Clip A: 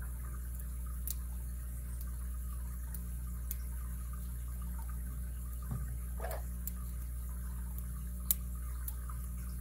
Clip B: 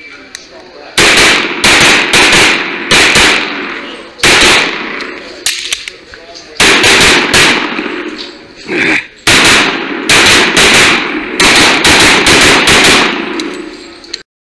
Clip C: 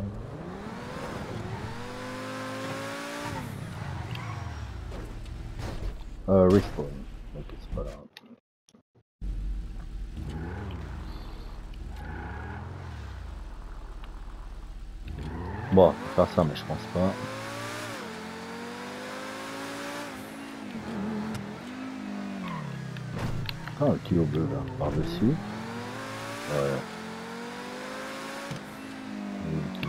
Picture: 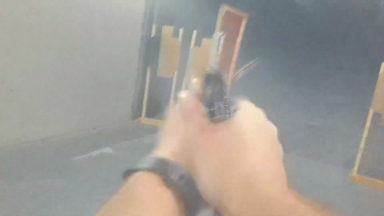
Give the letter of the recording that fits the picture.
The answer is B